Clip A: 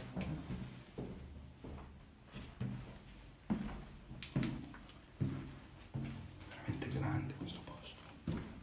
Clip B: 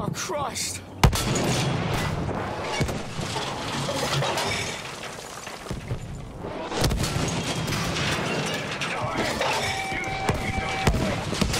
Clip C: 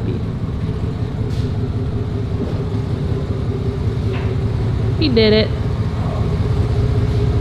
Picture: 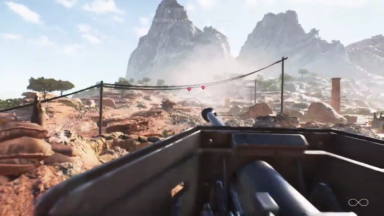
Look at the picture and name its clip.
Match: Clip B